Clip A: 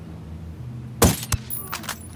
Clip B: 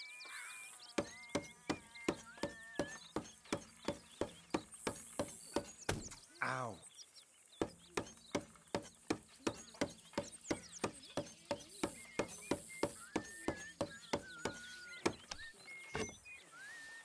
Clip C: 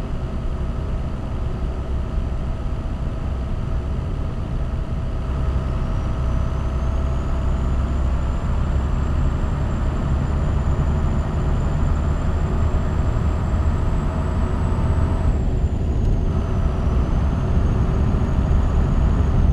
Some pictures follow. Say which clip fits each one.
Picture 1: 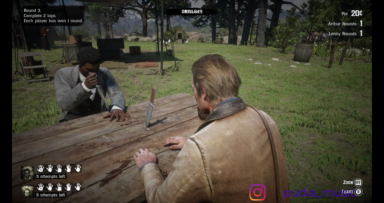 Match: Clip B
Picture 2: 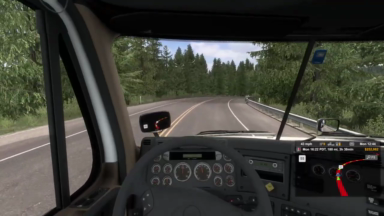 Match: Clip C